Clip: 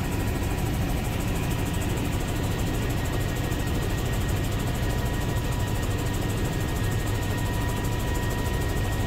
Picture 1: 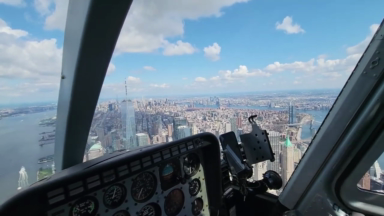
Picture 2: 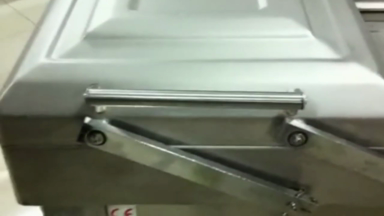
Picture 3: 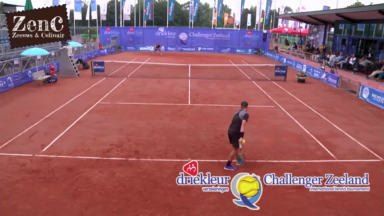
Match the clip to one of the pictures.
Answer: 1